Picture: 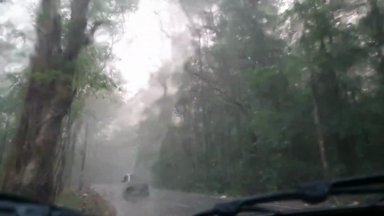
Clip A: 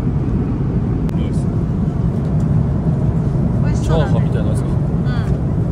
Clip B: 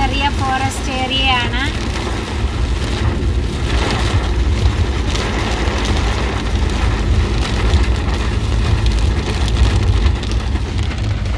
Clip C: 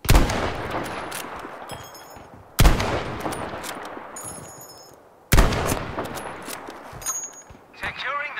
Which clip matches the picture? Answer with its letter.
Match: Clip B